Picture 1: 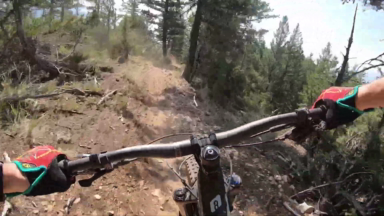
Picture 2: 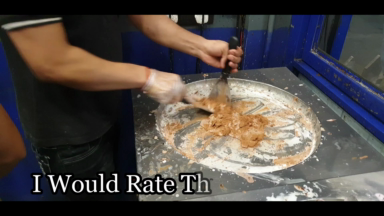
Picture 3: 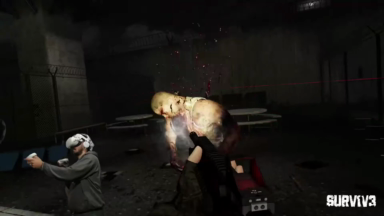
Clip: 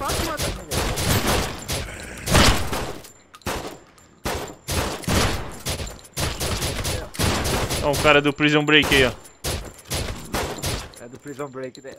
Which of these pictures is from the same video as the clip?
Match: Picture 3